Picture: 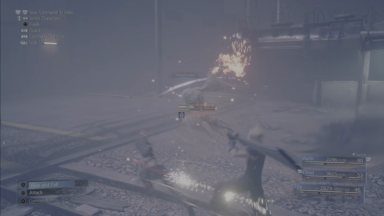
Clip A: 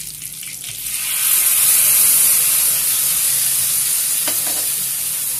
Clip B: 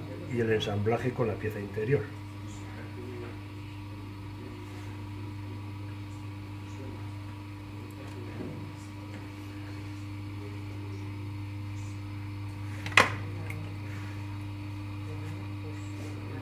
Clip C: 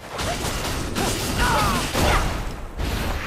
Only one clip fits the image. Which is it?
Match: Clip C